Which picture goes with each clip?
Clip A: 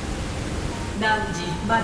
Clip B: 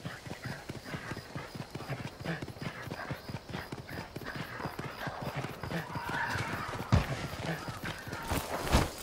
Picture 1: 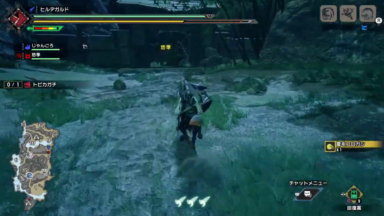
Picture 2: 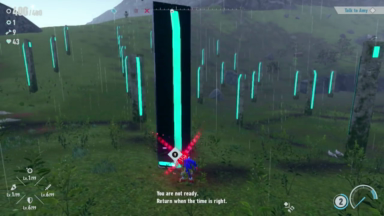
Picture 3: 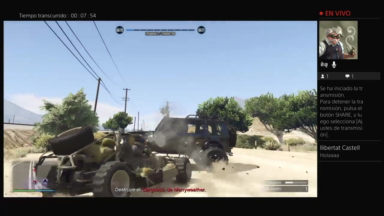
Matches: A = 2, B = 1